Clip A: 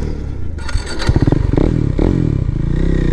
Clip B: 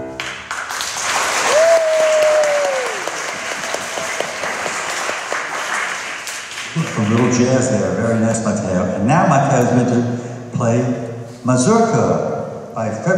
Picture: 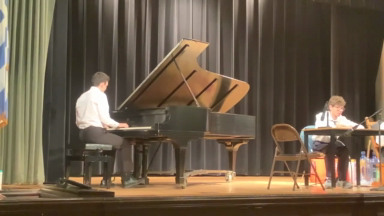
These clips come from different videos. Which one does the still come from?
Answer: B